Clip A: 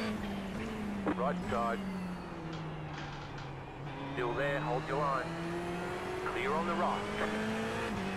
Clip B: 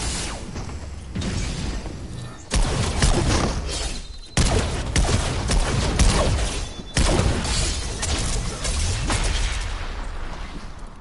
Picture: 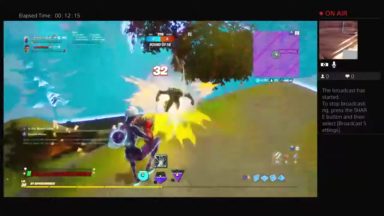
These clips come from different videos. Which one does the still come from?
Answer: B